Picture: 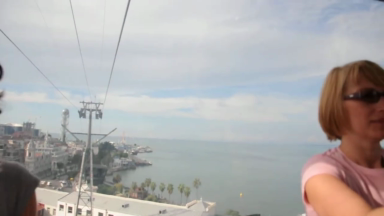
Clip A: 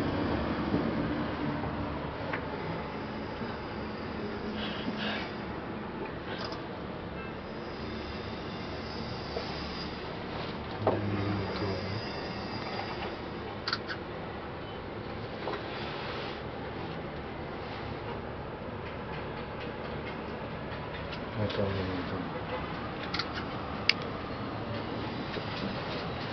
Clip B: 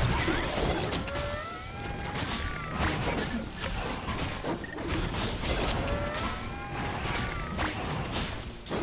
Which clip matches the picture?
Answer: A